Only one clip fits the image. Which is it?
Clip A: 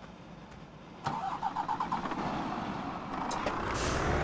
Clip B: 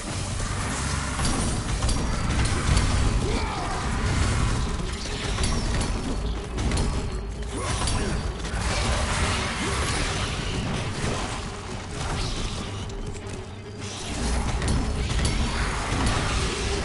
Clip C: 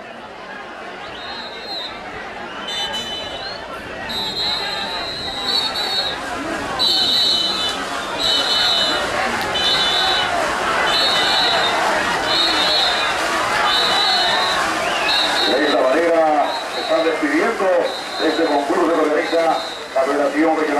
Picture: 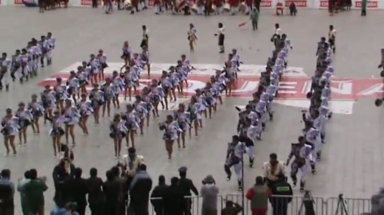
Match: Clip C